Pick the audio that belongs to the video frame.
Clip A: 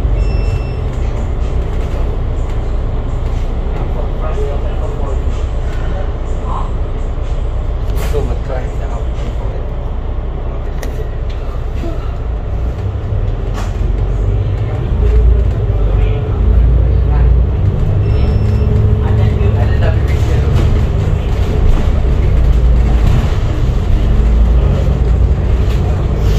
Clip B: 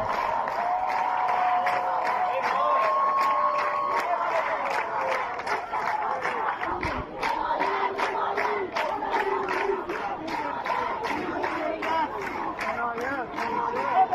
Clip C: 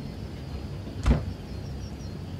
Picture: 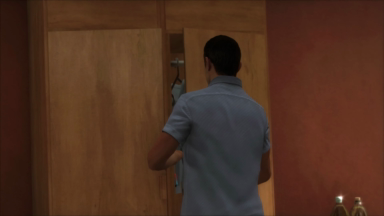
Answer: C